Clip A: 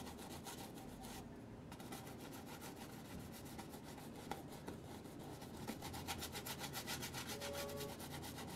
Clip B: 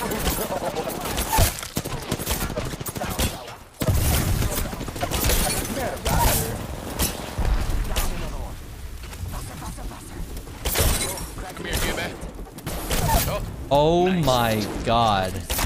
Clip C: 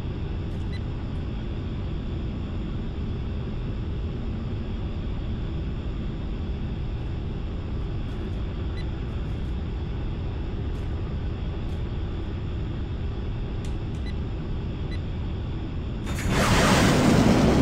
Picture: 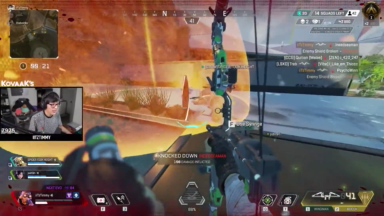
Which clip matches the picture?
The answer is B